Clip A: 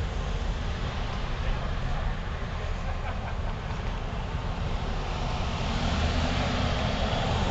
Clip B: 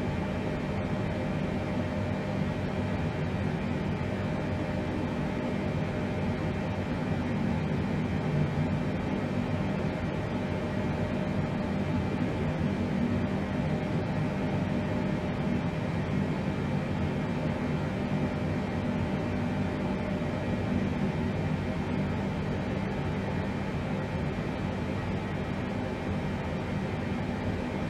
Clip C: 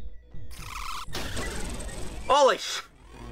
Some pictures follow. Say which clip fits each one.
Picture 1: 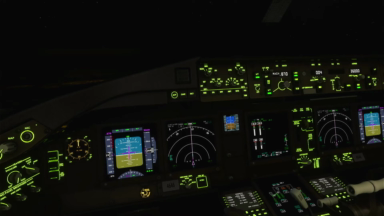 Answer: B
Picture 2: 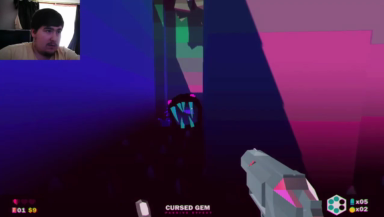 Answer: C